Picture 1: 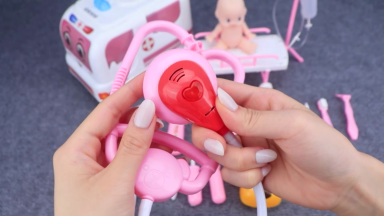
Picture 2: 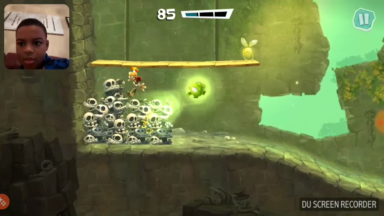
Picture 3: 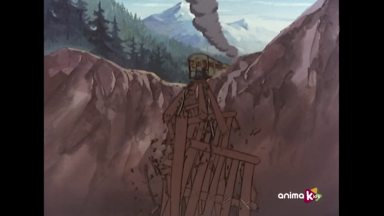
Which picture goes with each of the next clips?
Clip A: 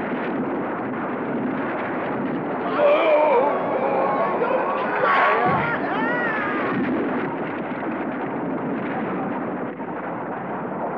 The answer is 3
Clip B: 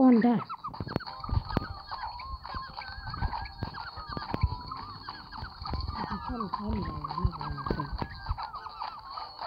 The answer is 2